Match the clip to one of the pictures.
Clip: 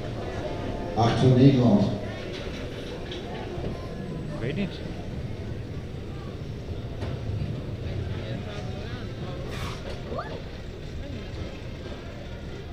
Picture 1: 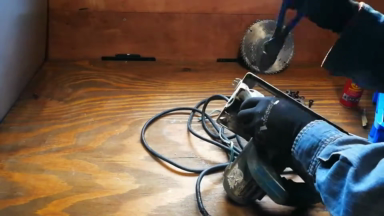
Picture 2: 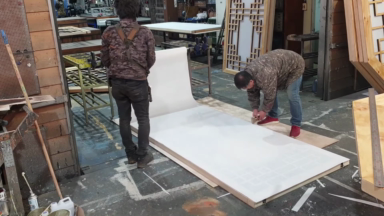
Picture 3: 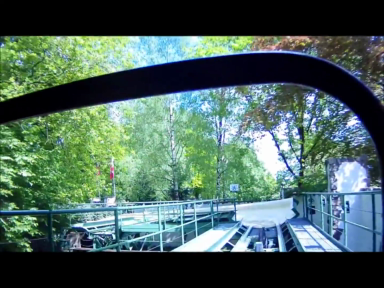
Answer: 3